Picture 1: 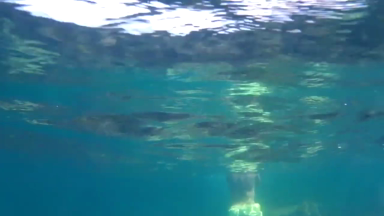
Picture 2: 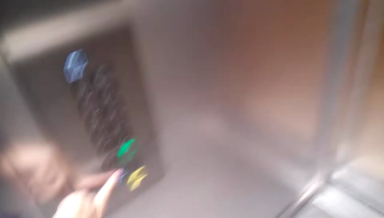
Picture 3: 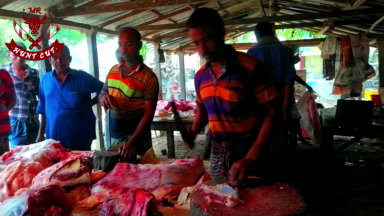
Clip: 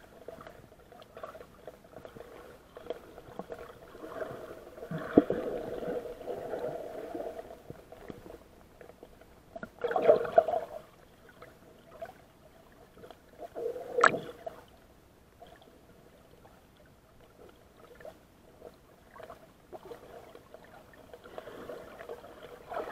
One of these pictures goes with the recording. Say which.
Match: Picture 1